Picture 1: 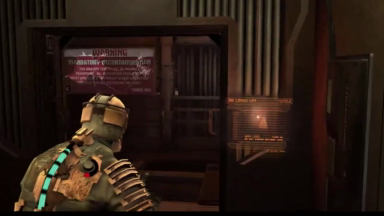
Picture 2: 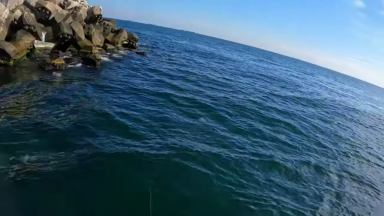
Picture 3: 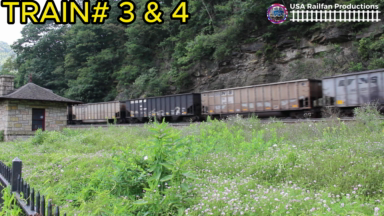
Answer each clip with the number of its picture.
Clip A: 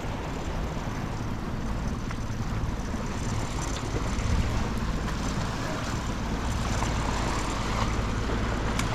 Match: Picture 2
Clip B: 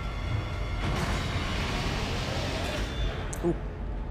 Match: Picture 1